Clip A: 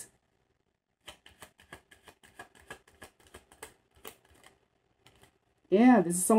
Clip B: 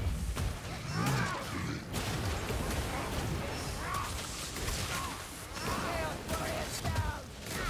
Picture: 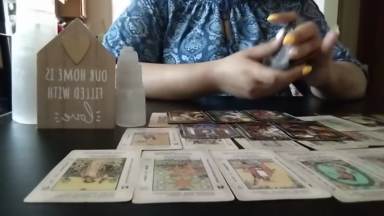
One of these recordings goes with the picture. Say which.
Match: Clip A